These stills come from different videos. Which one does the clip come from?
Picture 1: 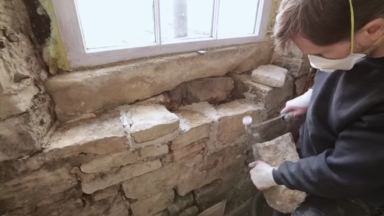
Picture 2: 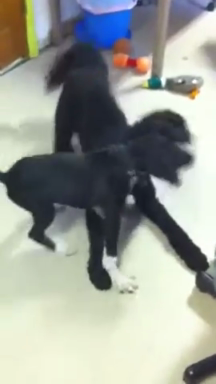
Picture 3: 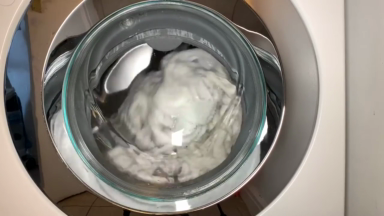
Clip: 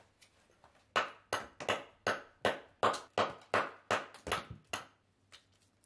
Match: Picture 1